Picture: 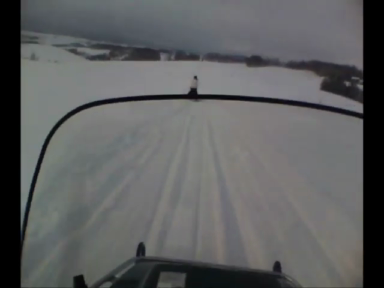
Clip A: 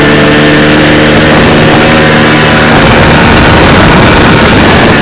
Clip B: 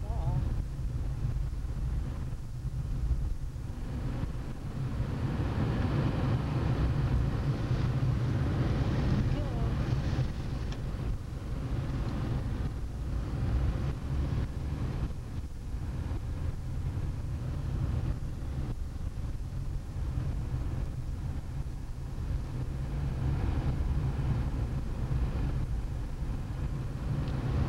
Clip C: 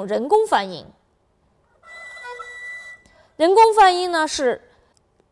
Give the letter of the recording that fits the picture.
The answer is A